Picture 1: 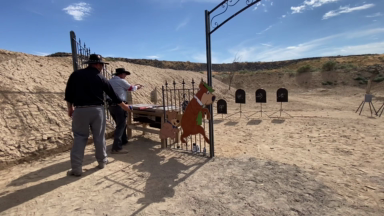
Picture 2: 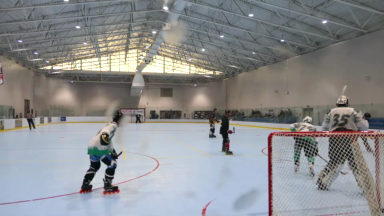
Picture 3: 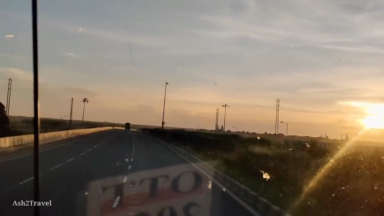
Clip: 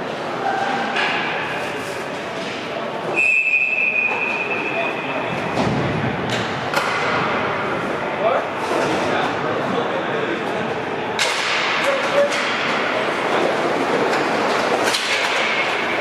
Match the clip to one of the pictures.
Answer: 2